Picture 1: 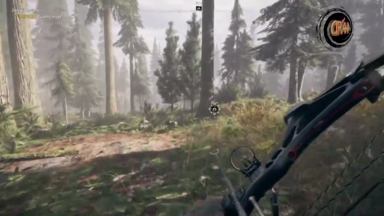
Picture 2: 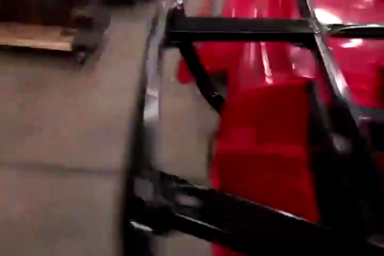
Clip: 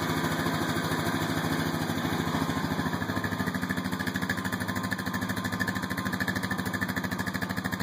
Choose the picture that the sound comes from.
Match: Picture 2